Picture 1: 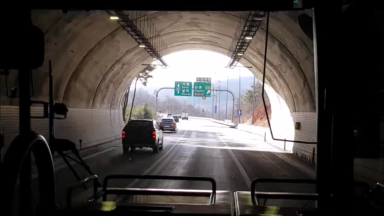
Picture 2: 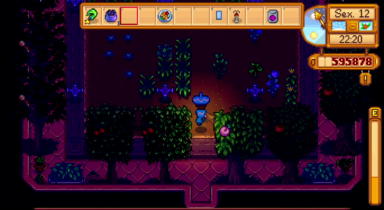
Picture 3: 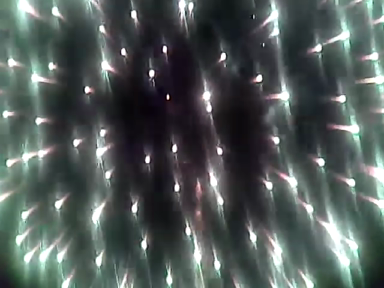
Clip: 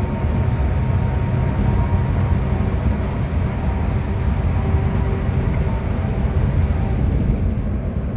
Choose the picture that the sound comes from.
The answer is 1